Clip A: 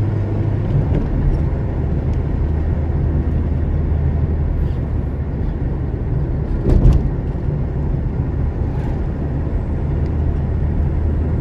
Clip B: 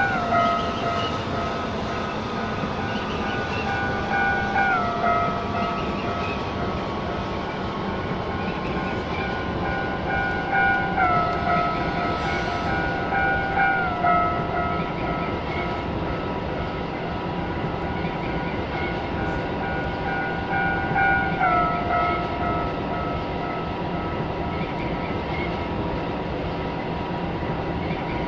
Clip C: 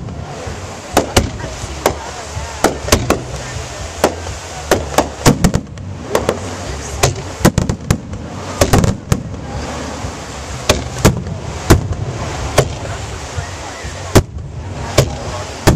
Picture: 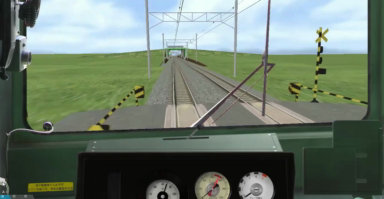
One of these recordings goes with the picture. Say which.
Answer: B